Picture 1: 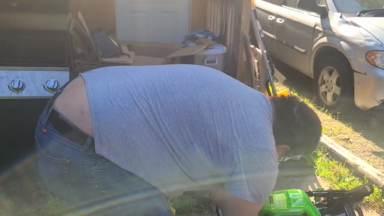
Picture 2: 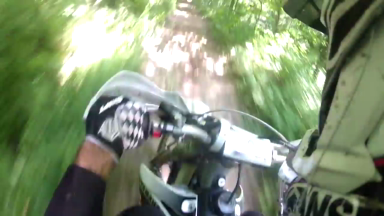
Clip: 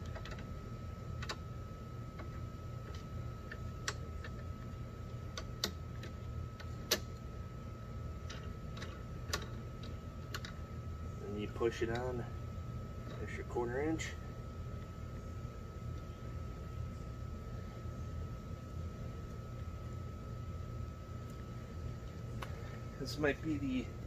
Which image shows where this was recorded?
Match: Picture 1